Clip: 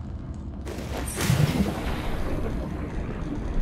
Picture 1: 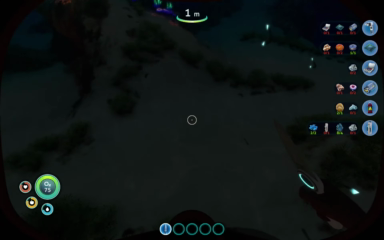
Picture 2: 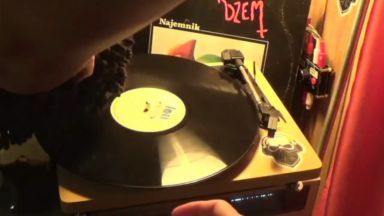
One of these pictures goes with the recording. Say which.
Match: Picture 1